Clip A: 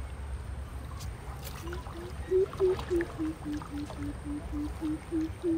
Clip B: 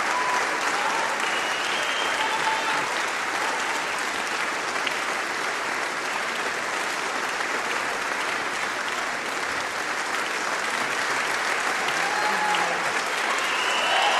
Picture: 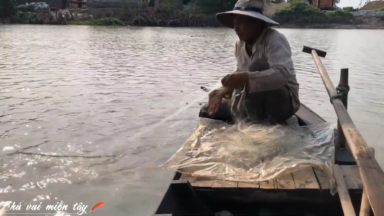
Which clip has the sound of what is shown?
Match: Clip A